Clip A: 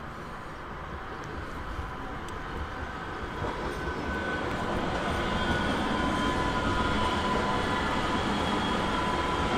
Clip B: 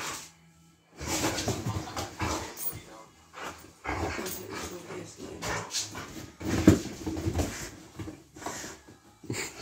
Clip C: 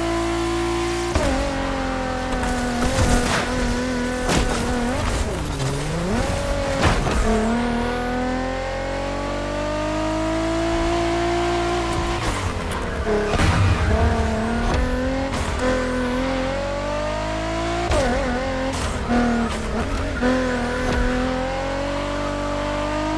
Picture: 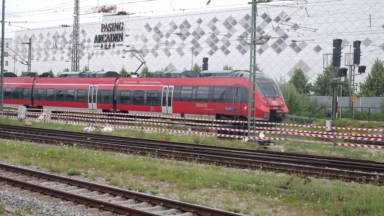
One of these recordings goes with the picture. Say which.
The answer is A